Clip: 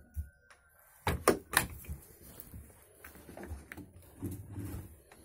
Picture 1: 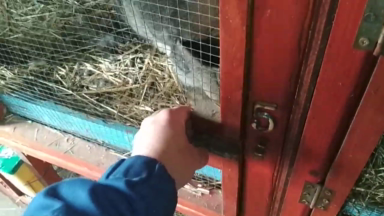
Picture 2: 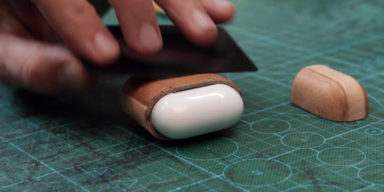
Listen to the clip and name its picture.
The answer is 1